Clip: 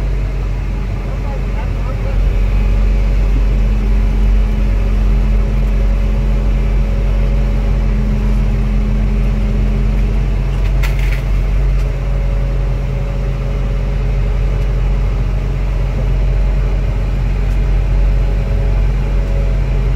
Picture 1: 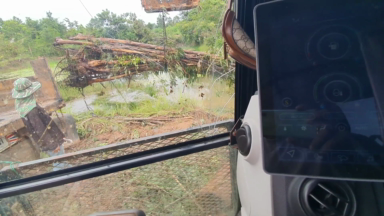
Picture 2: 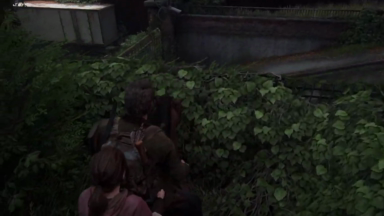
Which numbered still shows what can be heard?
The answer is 1